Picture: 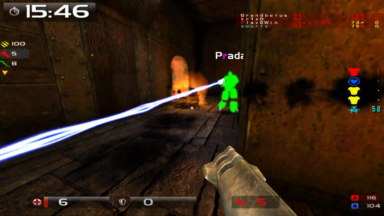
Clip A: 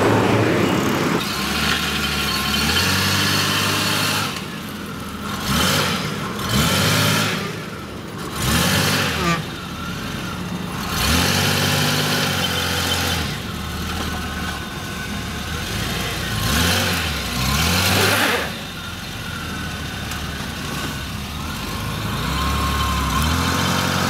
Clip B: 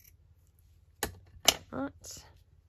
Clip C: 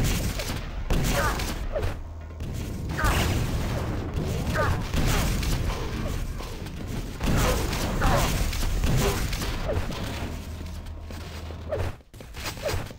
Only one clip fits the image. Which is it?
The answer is C